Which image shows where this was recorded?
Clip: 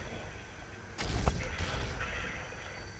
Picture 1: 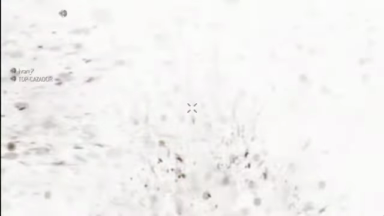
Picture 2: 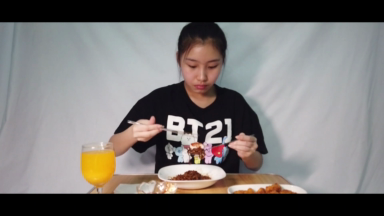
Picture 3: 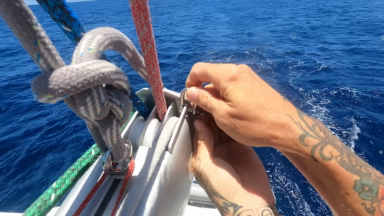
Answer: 1